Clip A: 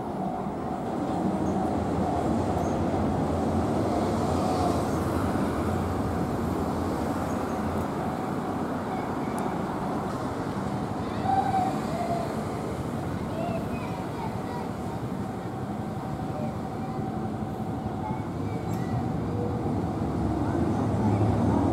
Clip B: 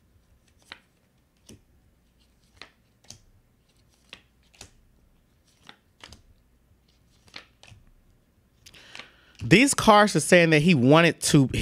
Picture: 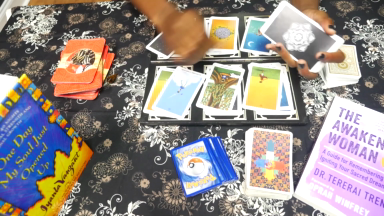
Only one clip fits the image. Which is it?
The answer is B